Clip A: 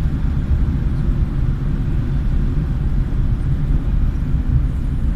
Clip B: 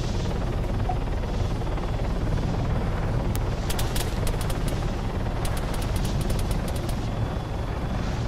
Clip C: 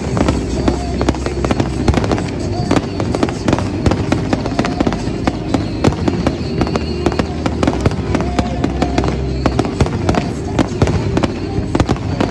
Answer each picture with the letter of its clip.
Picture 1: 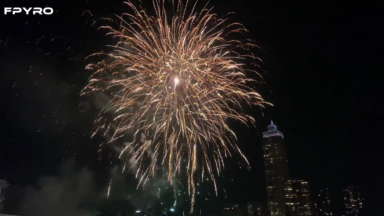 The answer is C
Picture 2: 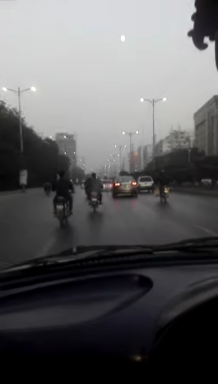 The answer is A